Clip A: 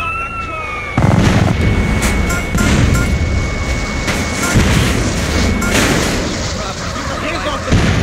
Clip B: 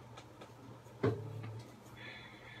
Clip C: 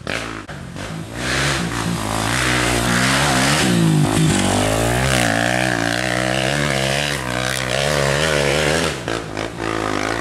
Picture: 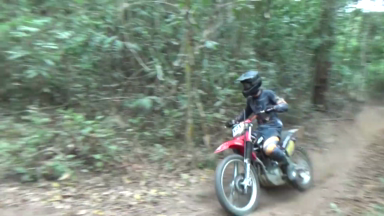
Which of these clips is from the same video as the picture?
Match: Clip C